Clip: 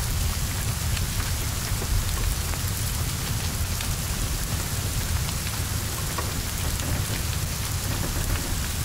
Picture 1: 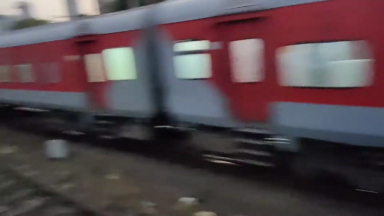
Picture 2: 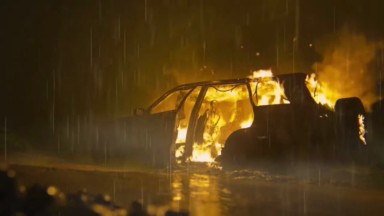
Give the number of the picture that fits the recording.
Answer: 2